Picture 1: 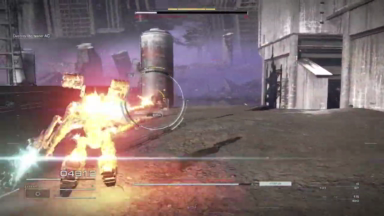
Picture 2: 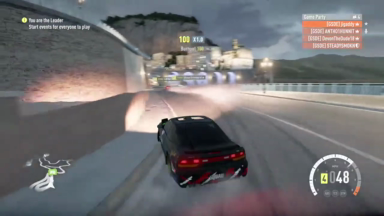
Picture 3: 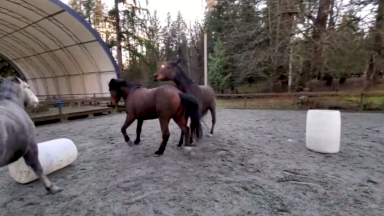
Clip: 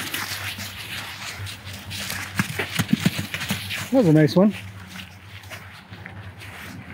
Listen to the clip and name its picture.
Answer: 3